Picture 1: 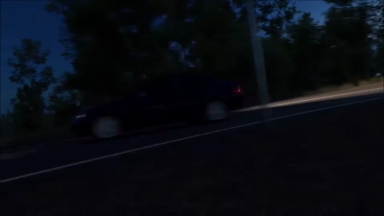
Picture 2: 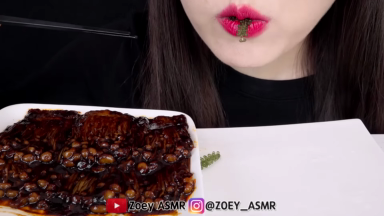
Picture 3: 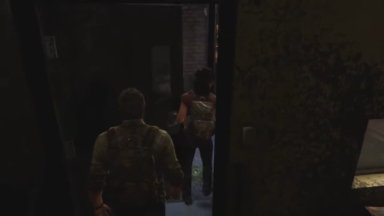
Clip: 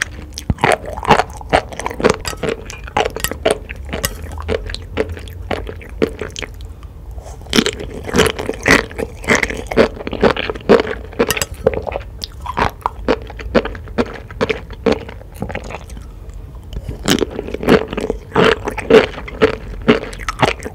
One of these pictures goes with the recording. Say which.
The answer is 2